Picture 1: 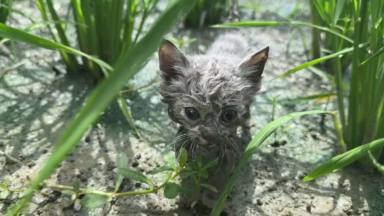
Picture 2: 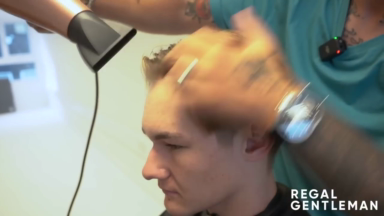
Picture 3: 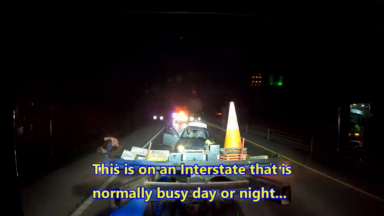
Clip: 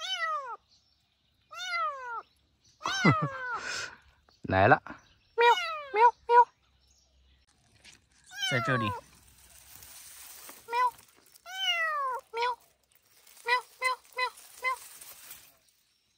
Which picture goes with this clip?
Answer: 1